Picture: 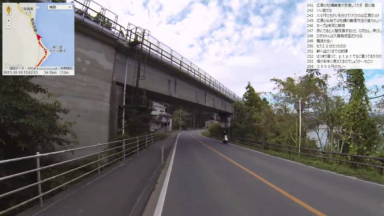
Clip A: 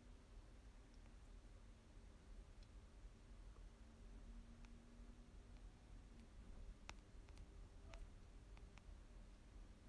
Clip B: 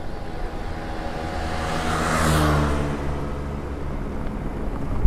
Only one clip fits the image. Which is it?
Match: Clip B